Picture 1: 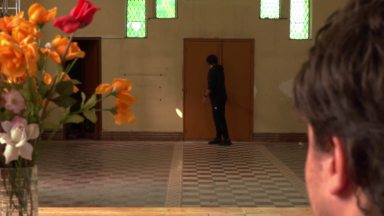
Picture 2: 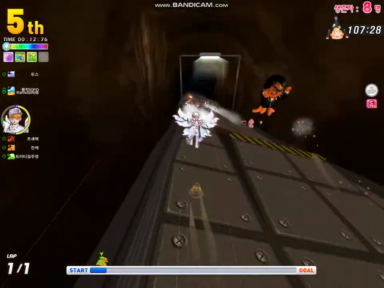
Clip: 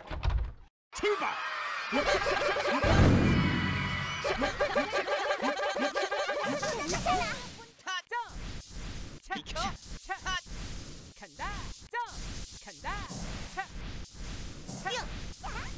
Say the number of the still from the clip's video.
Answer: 2